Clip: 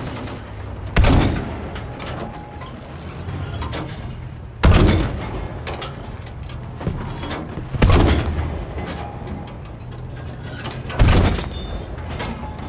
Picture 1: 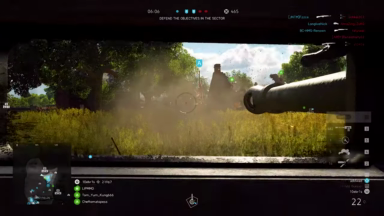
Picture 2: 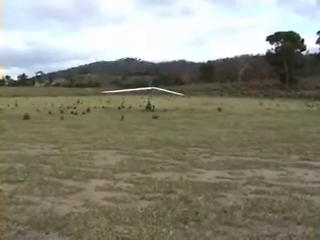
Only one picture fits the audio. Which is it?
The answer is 1